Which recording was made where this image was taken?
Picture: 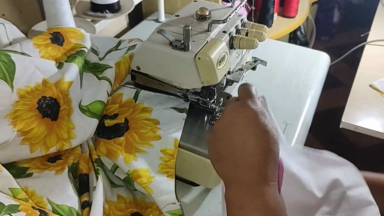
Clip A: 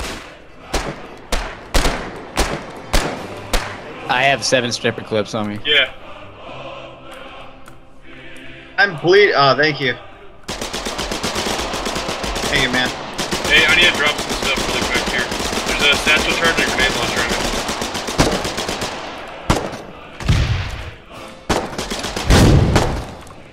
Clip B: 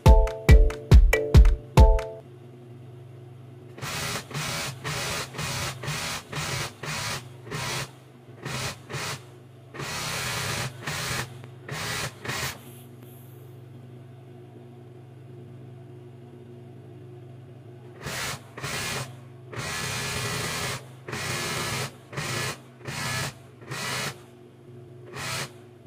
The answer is B